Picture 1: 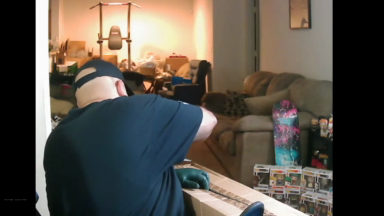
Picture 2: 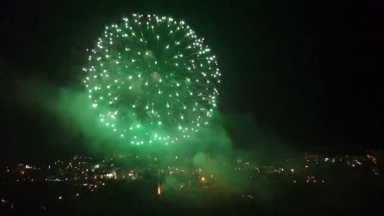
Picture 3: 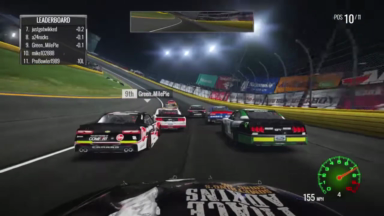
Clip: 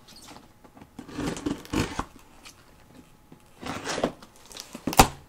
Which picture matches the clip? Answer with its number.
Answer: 1